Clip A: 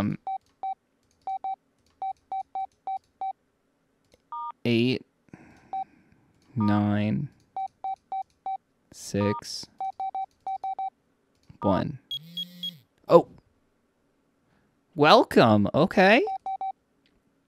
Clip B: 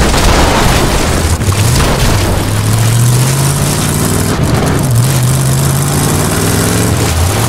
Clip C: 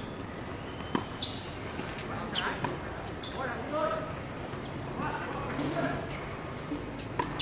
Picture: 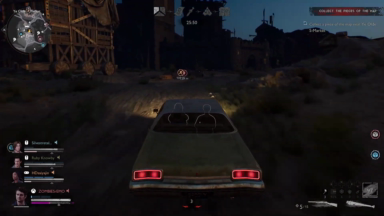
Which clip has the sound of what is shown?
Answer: B